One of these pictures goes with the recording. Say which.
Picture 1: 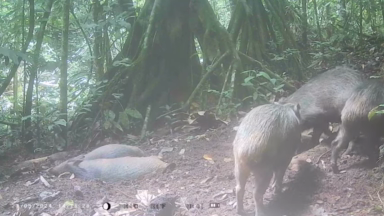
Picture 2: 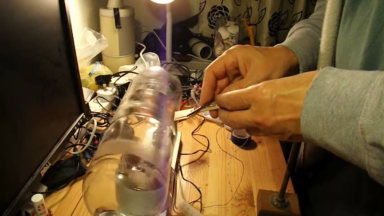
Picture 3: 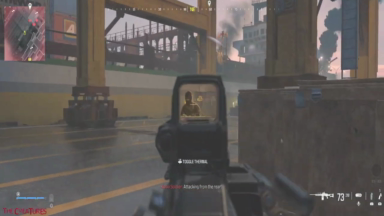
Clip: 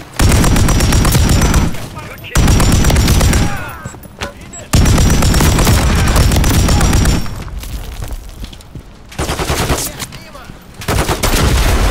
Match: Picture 3